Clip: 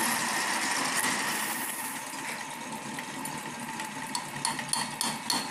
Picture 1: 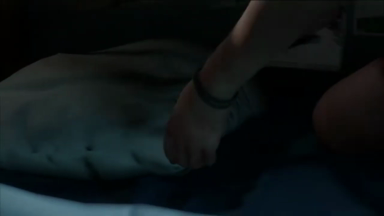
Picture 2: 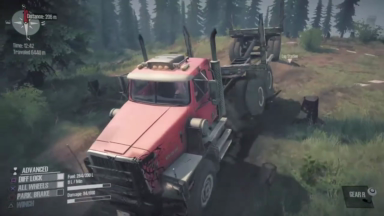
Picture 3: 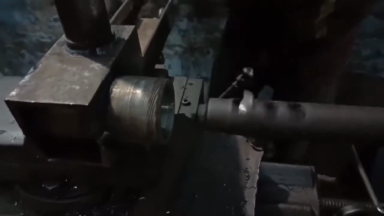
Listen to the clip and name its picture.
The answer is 3